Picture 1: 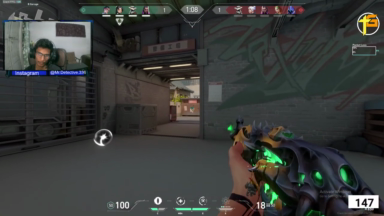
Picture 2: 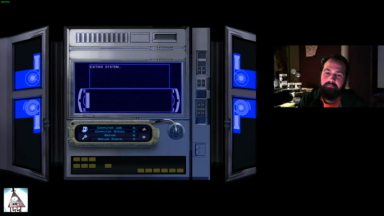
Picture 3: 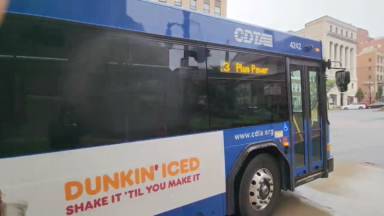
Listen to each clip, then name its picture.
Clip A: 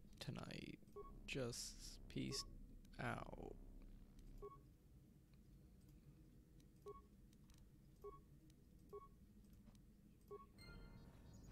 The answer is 2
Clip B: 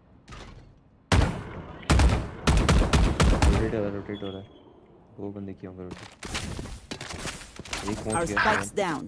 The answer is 1